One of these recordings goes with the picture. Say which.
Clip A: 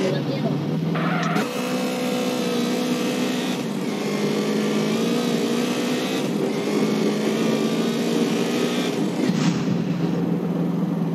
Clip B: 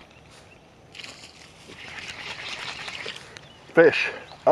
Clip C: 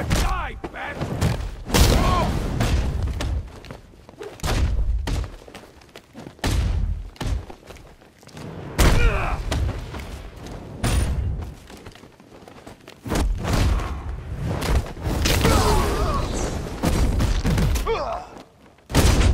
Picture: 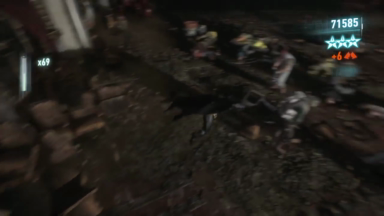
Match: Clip C